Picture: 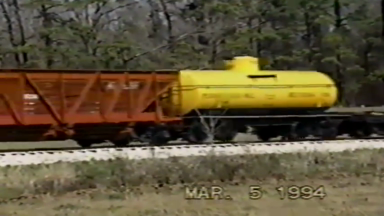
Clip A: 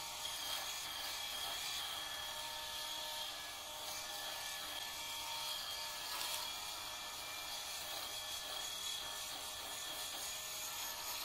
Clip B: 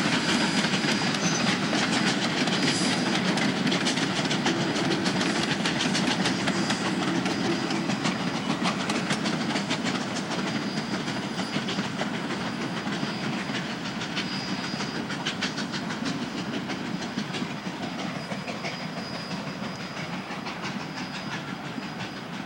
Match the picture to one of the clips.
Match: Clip B